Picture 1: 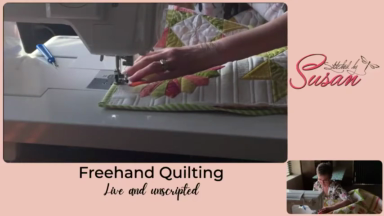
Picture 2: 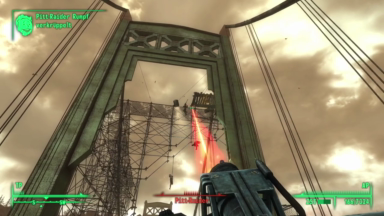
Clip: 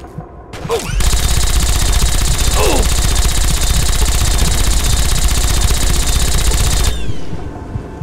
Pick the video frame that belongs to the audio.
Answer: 2